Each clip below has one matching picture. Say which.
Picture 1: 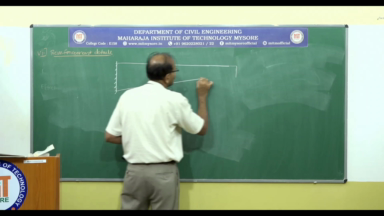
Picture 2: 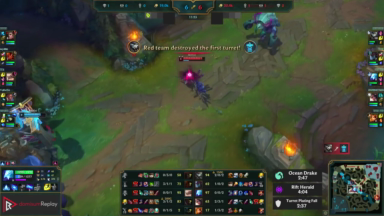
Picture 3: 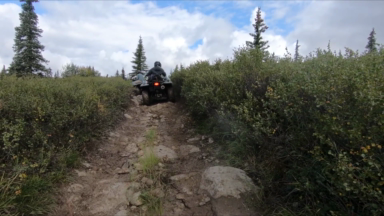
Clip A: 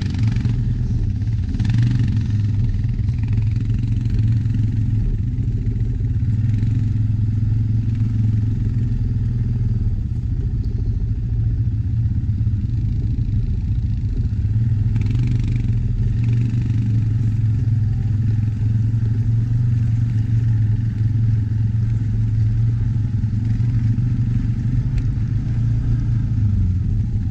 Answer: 3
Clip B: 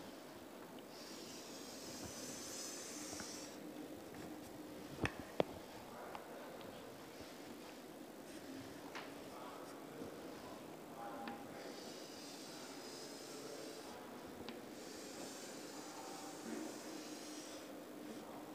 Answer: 1